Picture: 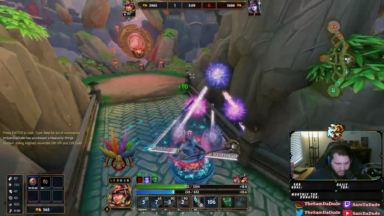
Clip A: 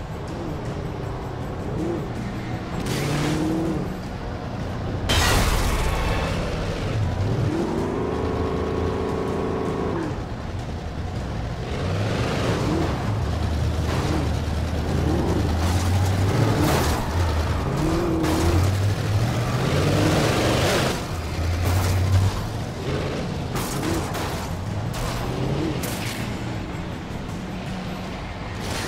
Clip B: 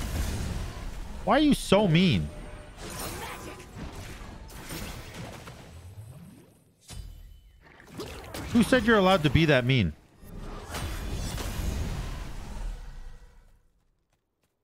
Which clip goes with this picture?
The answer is B